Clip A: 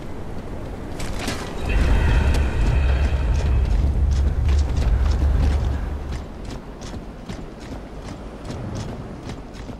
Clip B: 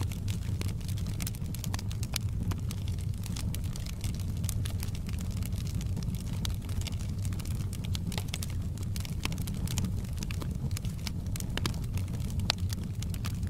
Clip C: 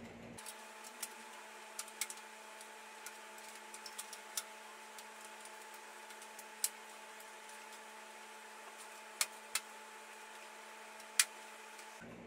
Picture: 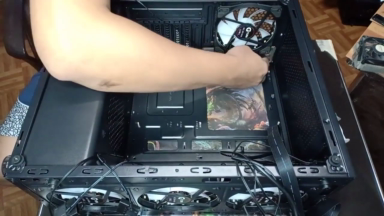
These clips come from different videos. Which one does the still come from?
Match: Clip C